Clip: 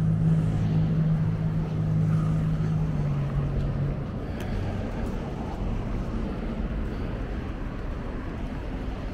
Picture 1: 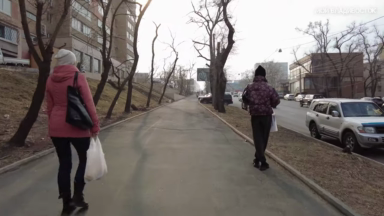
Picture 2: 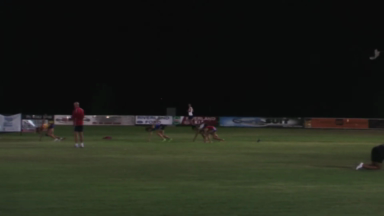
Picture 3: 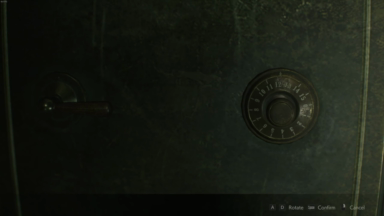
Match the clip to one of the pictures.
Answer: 1